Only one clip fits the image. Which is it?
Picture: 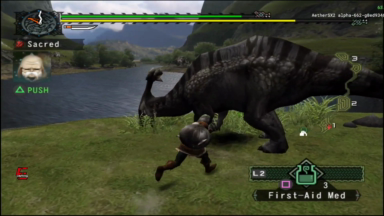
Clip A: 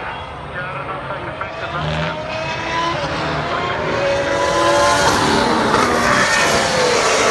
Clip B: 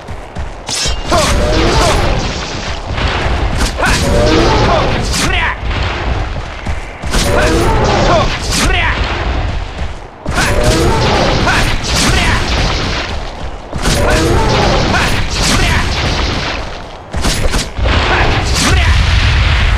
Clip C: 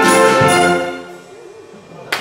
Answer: B